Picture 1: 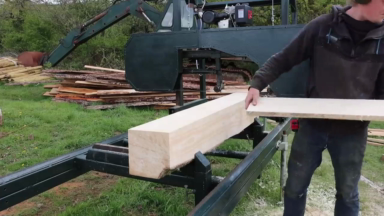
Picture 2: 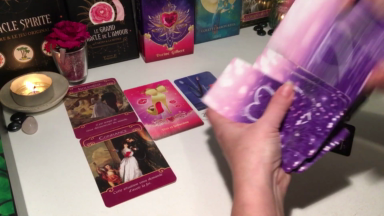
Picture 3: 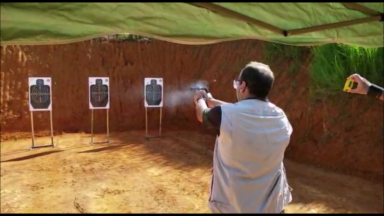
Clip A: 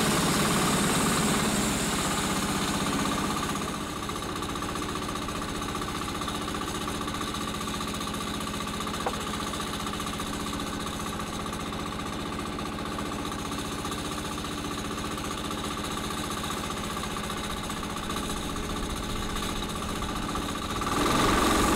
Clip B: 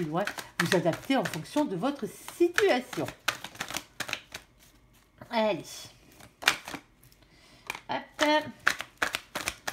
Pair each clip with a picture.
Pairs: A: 1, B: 2